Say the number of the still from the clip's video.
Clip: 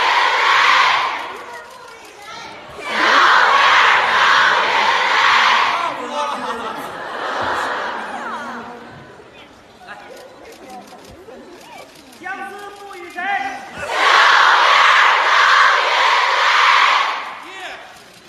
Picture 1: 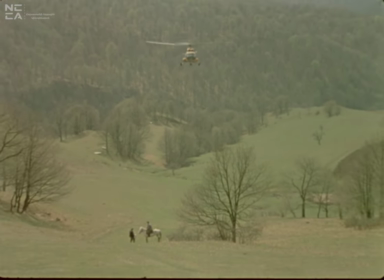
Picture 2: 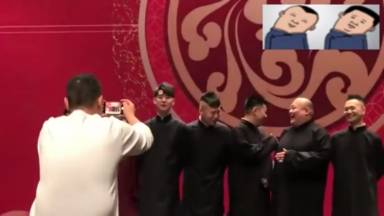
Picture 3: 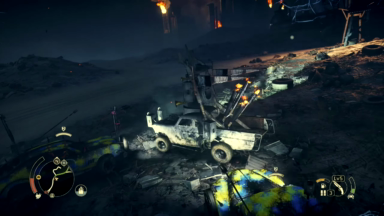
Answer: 2